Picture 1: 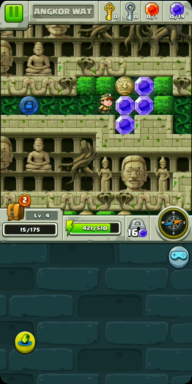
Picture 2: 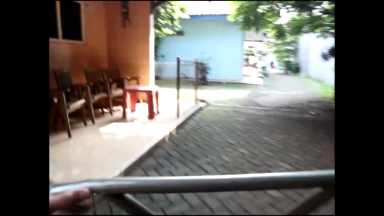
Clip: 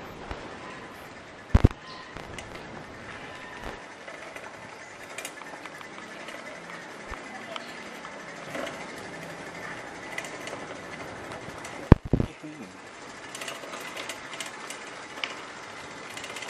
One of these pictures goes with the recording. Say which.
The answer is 2